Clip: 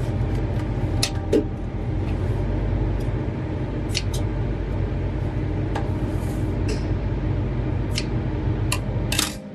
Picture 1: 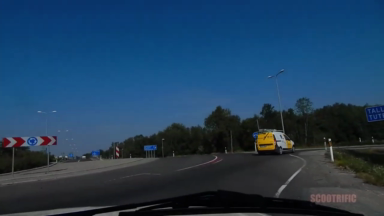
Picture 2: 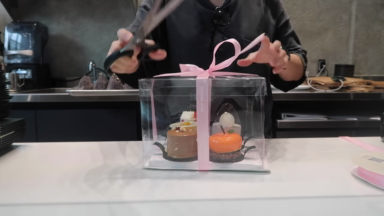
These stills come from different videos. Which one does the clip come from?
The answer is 2